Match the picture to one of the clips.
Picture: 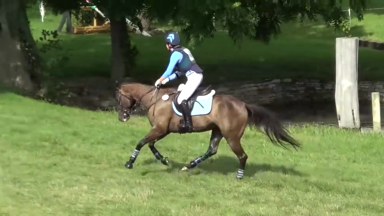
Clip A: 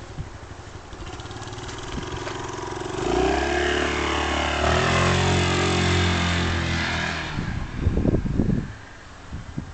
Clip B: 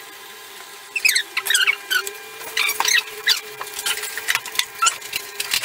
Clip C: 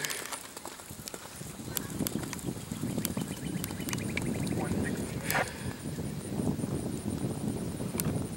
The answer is C